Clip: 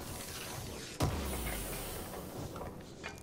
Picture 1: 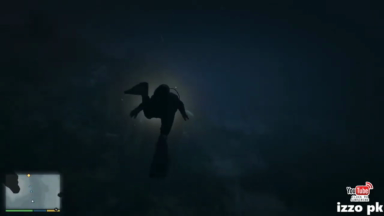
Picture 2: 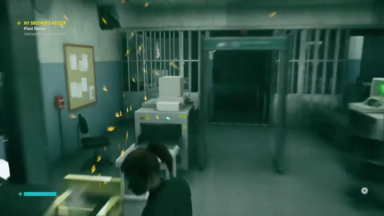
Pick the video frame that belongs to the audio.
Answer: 2